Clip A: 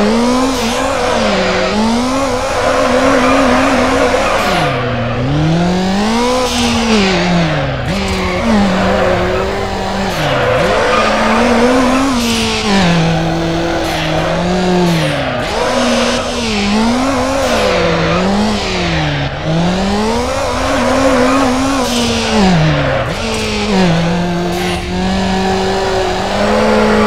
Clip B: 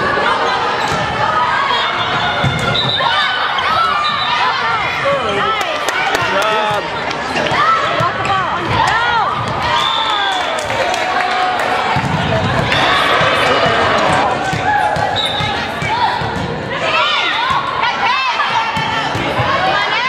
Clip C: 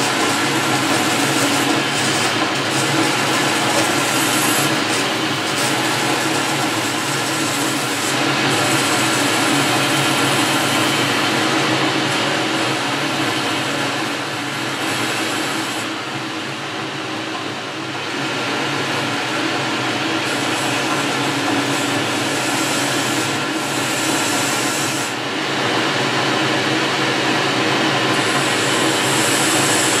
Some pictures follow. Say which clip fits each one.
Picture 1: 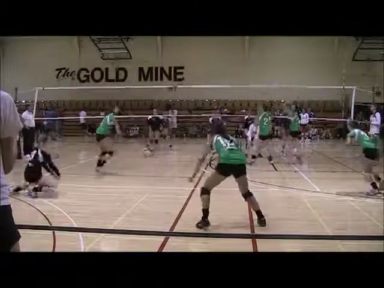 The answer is B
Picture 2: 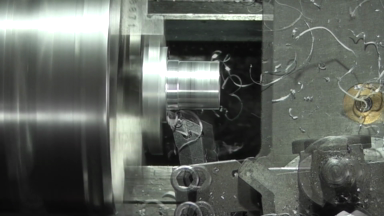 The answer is C